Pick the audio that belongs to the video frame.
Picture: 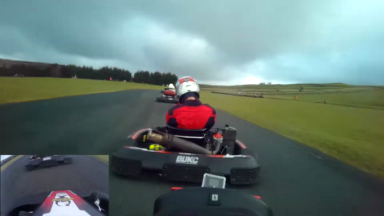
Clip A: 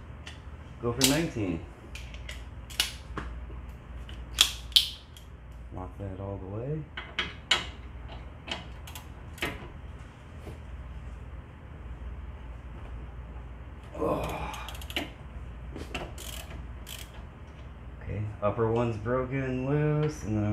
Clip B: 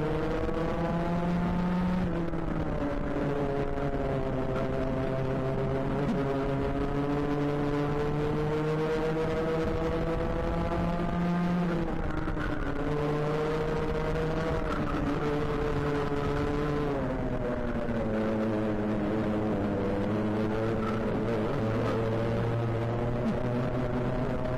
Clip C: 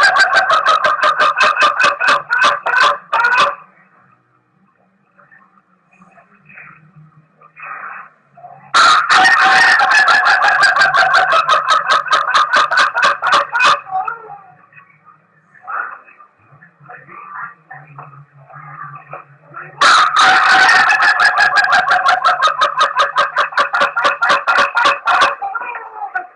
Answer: B